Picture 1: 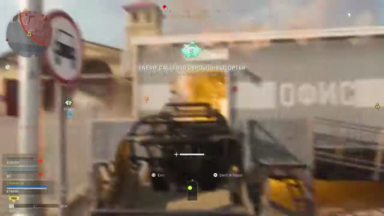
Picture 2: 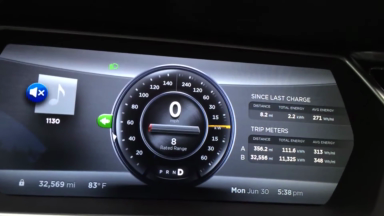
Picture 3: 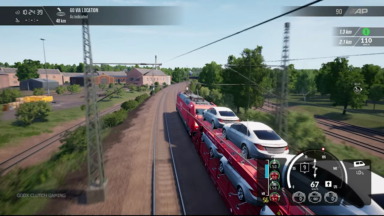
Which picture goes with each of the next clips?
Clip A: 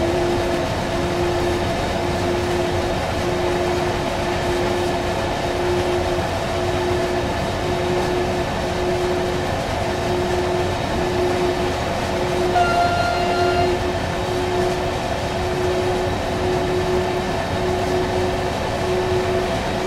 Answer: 3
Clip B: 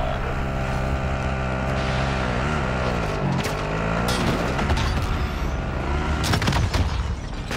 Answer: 1